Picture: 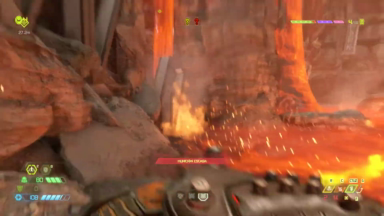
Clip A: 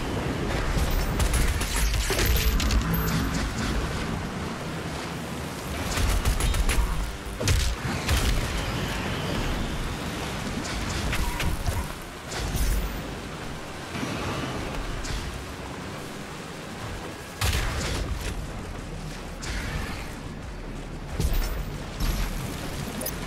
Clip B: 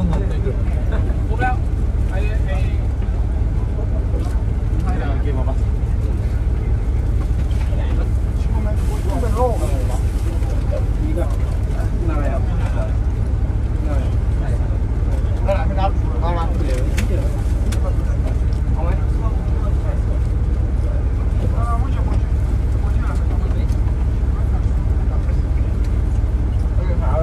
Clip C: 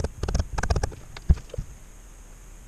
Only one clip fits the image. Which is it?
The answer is A